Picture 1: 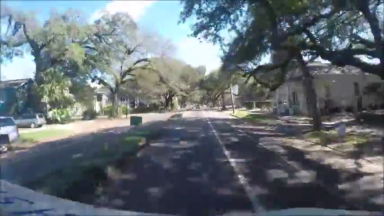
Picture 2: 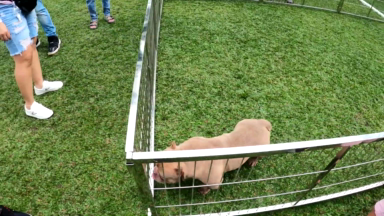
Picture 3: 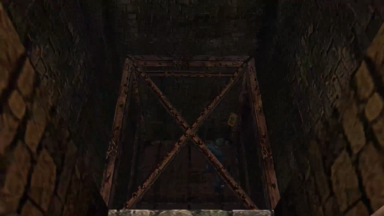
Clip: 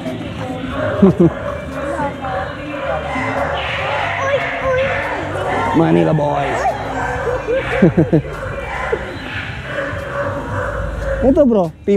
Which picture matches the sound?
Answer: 2